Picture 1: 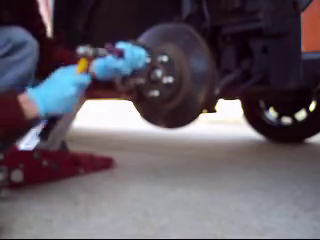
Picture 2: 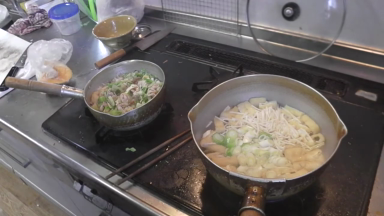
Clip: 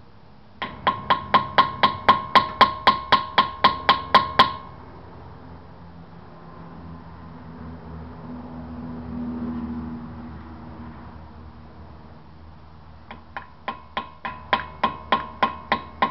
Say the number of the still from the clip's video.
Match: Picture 1